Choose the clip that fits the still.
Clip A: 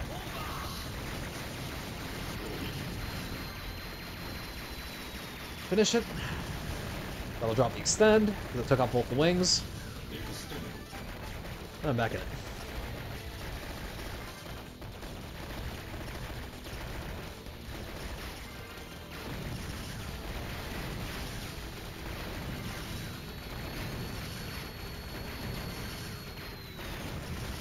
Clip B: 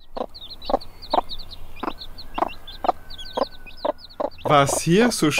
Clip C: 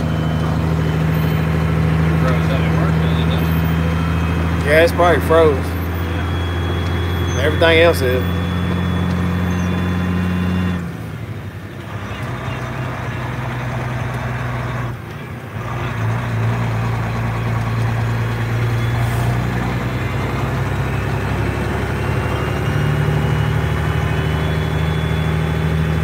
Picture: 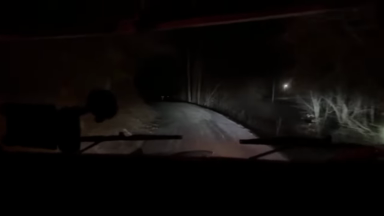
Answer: C